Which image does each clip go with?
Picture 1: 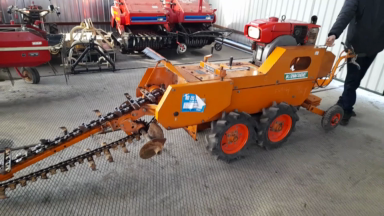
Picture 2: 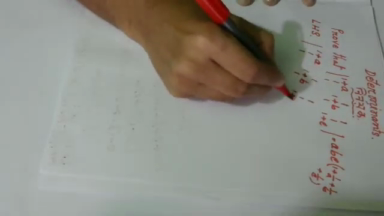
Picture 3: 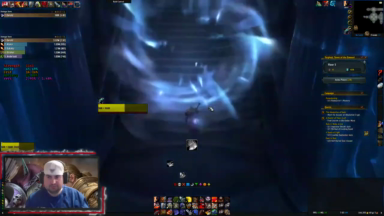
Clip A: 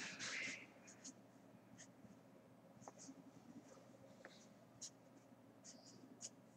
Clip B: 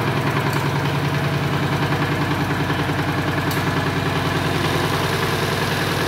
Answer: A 2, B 1